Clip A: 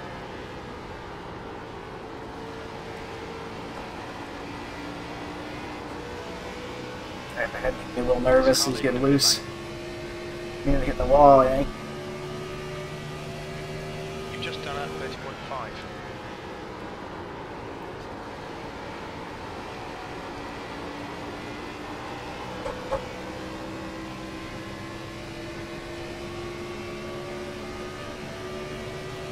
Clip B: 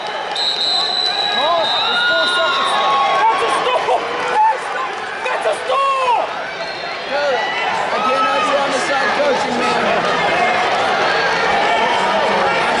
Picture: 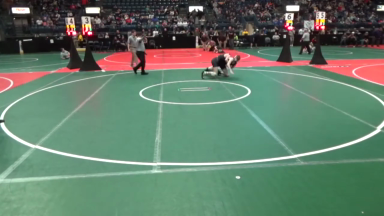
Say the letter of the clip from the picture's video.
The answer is B